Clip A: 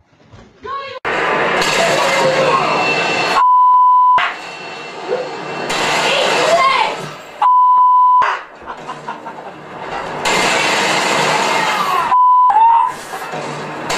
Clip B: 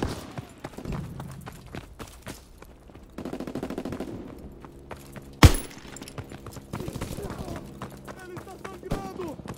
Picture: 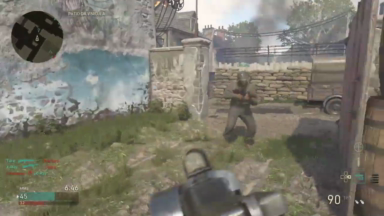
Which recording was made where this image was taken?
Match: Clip B